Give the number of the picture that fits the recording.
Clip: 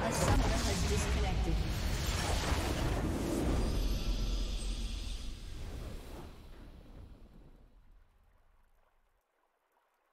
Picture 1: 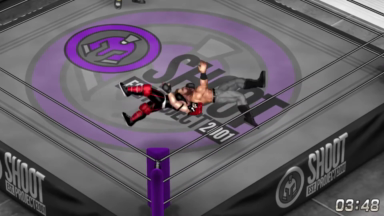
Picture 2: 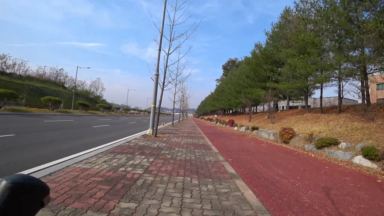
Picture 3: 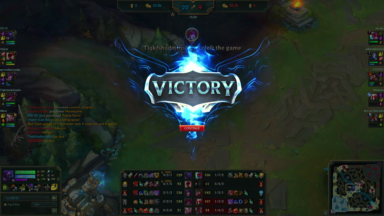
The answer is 3